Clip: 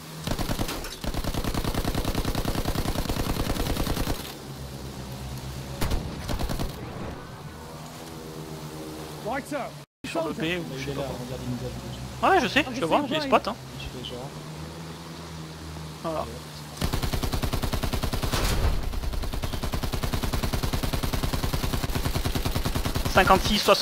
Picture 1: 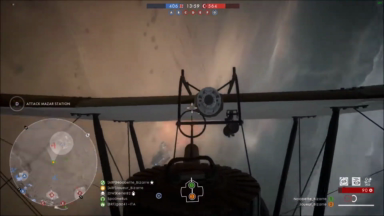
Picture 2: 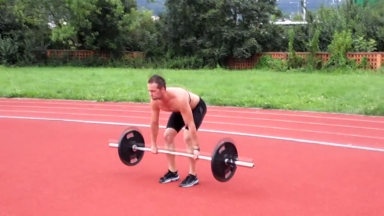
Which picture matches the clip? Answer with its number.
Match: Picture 1